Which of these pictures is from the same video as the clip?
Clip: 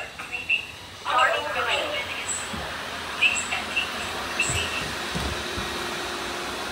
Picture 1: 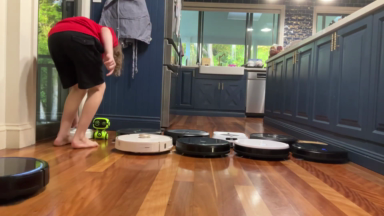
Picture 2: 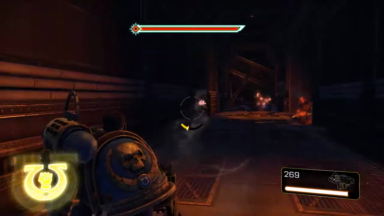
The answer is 1